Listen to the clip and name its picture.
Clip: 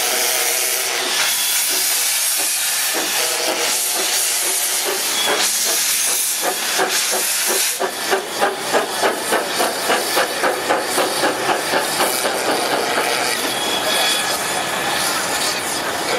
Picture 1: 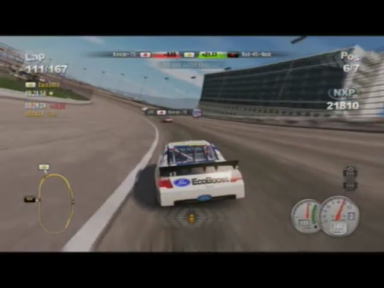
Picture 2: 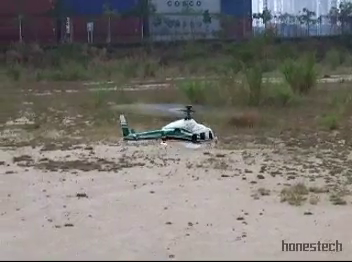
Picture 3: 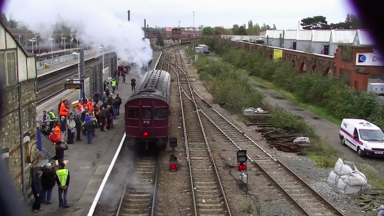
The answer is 3